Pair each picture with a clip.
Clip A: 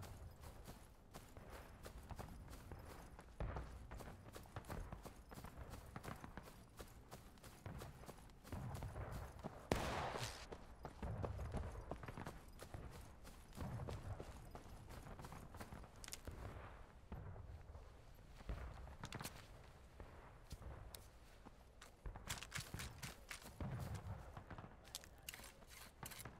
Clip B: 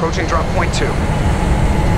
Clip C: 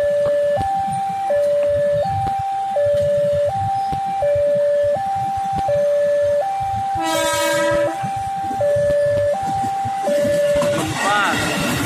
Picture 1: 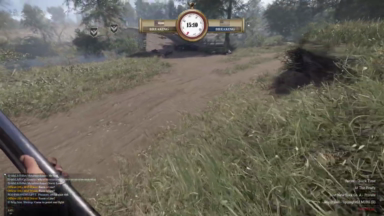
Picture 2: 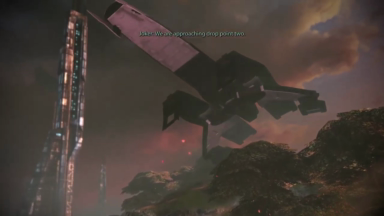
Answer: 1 A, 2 B